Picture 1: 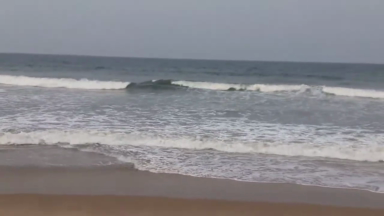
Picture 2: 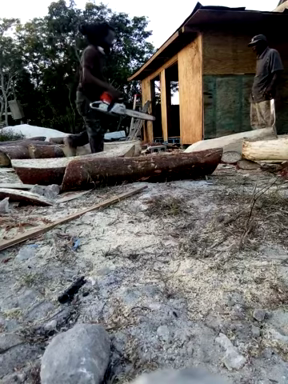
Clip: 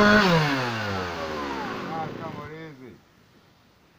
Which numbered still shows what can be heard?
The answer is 2